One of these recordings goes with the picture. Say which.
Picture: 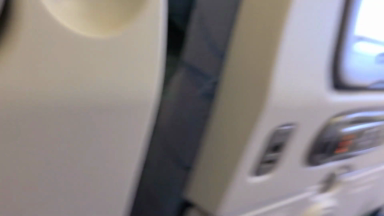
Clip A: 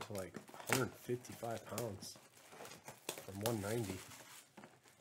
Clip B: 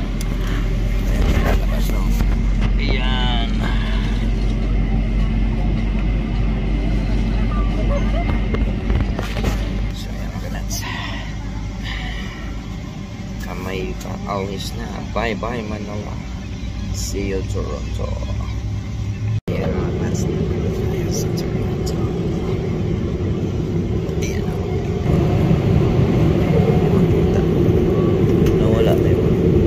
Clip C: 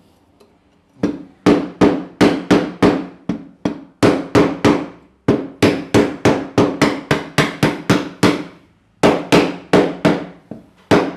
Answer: B